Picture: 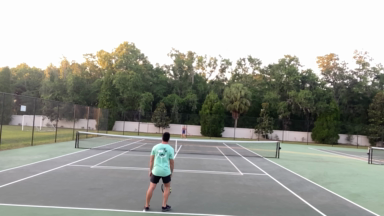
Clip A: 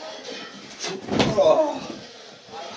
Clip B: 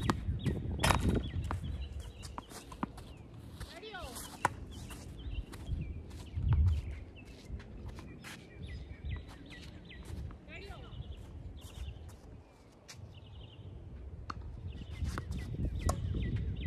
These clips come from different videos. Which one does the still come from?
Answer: B